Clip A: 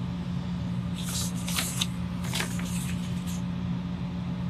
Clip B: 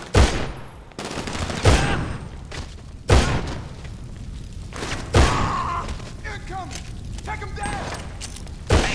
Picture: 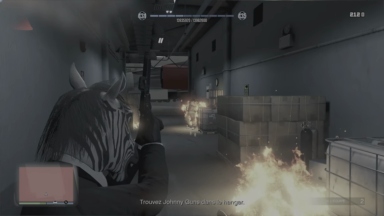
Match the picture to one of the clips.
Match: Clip B